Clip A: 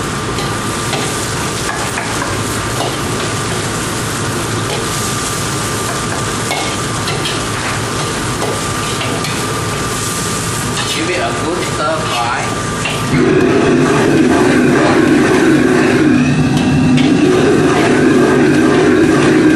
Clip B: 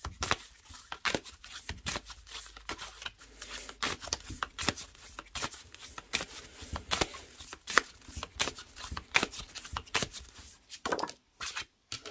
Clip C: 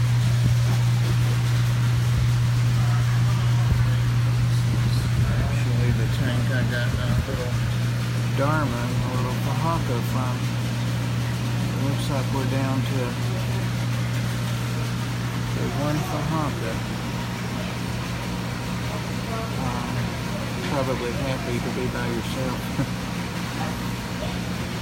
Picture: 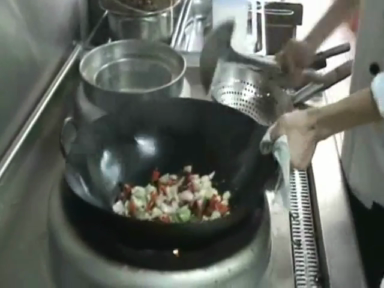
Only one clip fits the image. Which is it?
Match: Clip A